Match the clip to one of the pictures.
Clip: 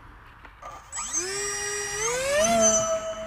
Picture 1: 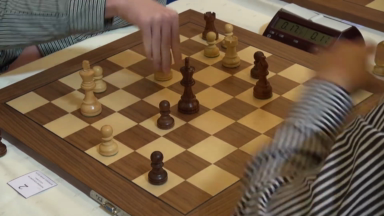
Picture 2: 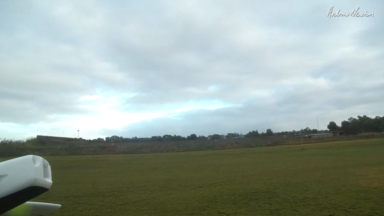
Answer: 2